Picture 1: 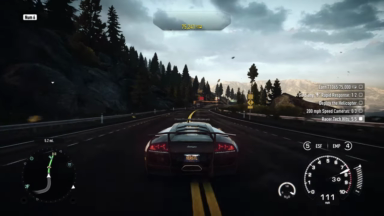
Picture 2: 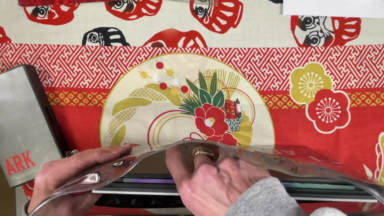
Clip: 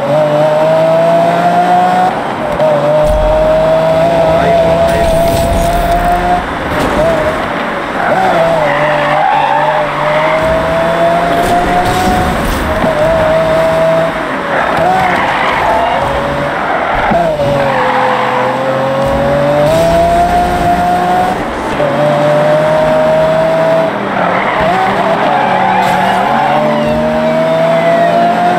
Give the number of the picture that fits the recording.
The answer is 1